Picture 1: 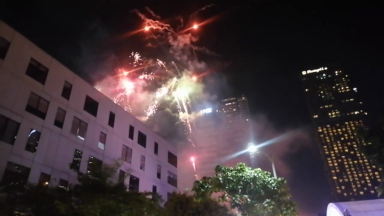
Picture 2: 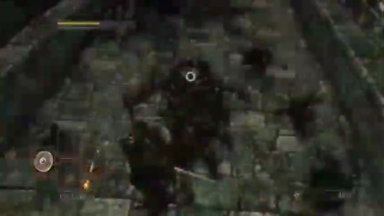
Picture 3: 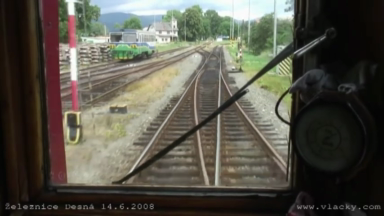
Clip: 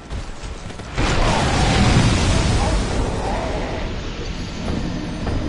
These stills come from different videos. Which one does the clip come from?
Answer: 2